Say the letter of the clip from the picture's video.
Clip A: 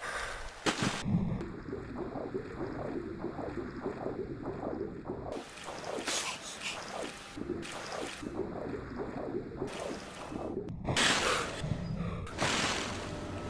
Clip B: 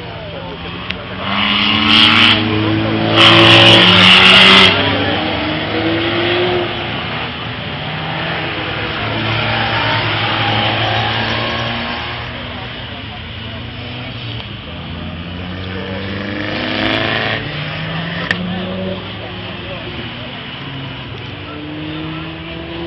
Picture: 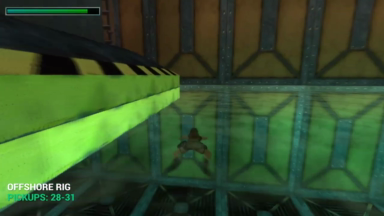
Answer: A